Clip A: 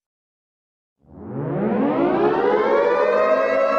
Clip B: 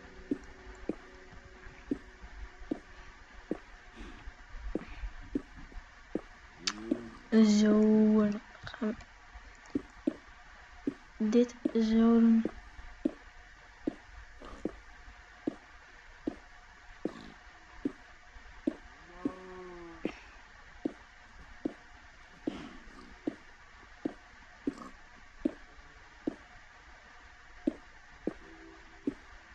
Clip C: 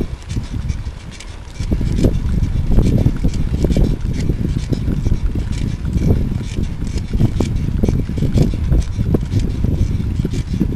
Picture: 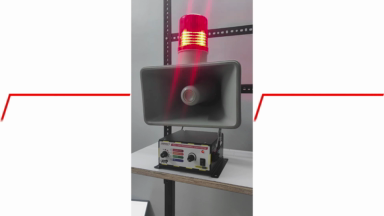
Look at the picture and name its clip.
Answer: A